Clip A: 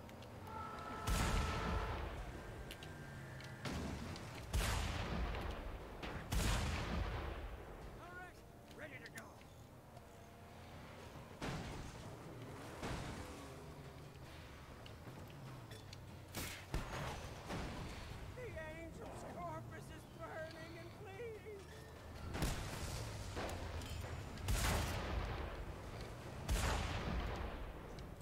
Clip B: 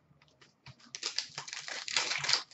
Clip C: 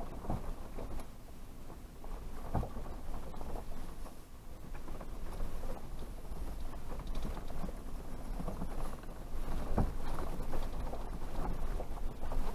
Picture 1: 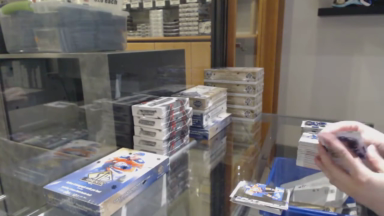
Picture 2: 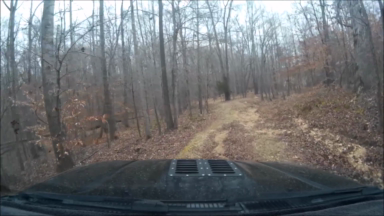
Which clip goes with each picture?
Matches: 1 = B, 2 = C